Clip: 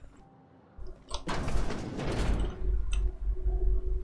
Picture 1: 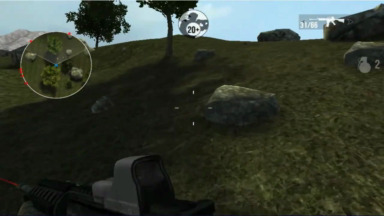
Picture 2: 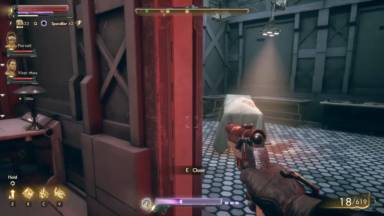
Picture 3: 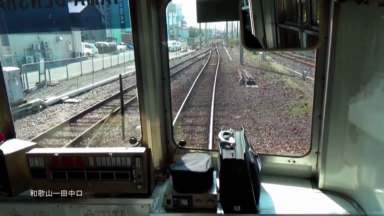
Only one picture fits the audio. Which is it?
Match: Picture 2